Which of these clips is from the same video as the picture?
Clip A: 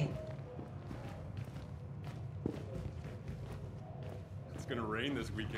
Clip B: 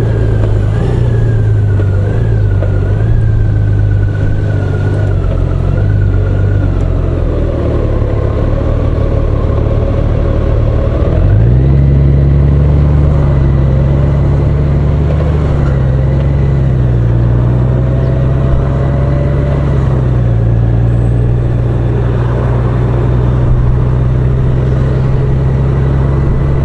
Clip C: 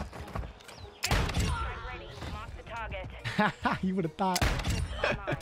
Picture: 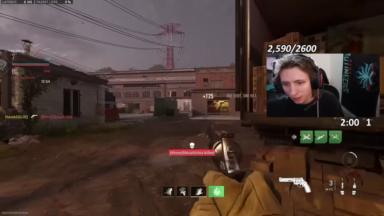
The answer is C